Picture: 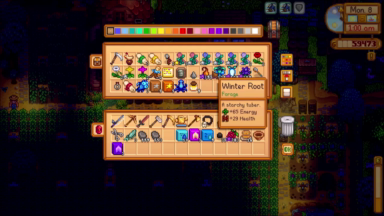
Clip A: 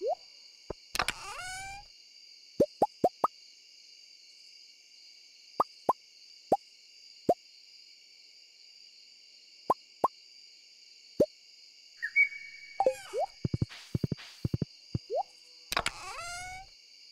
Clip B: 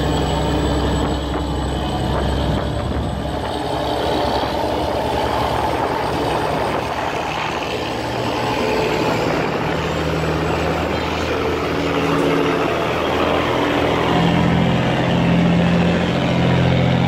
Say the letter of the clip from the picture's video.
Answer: A